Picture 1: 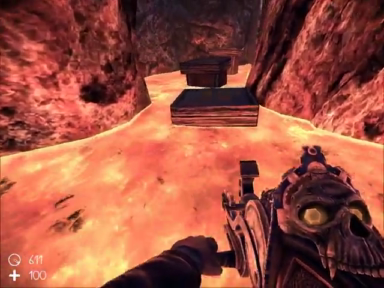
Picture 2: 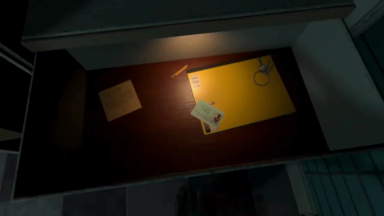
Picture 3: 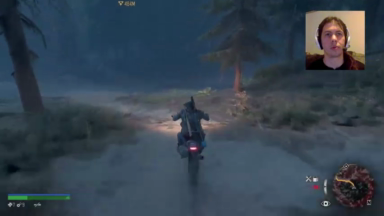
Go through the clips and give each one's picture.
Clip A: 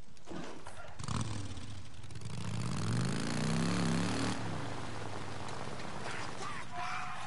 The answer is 3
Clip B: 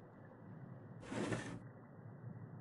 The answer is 2